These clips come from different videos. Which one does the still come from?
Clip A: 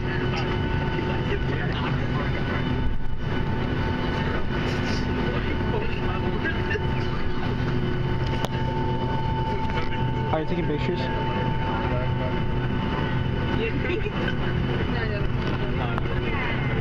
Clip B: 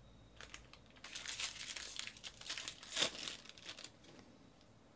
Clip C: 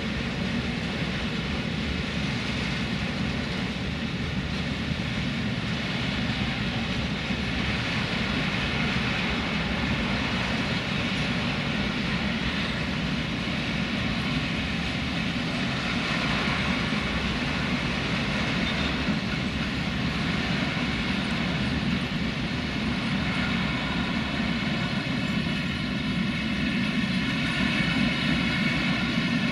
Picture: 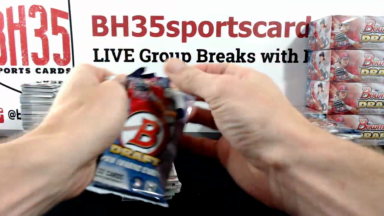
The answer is B